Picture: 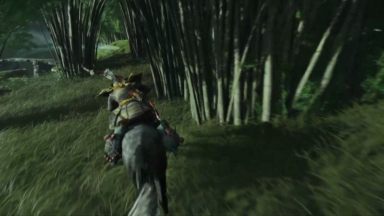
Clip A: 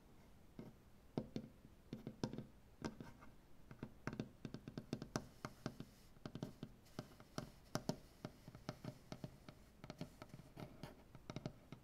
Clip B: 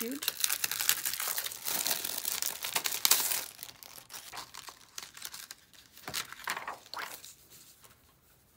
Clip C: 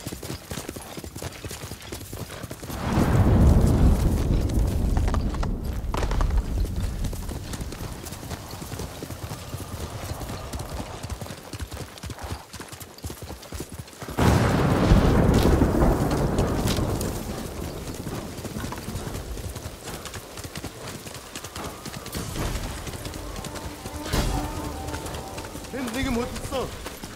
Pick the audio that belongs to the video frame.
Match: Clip C